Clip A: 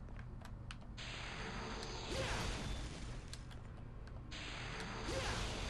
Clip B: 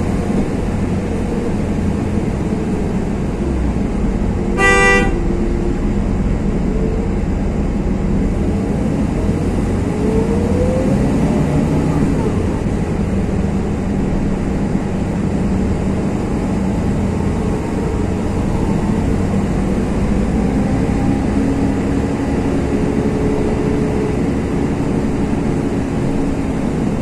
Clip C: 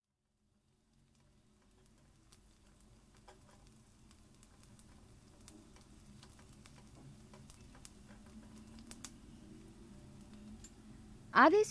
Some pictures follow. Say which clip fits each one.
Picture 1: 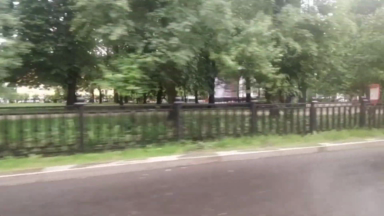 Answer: B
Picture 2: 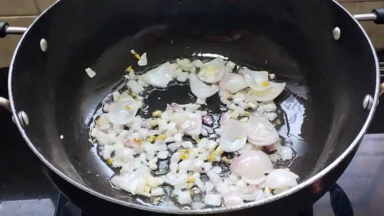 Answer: C